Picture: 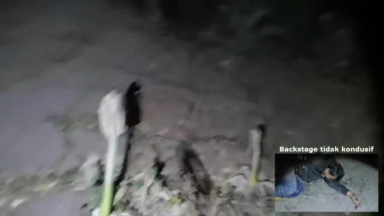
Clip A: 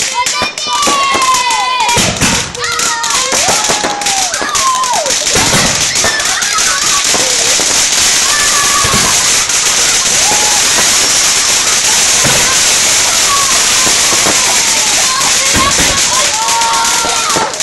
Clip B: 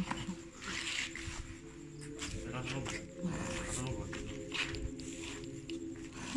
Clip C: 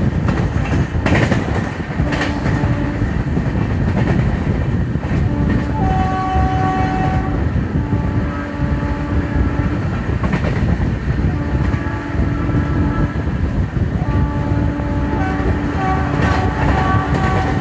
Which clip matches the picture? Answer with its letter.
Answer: B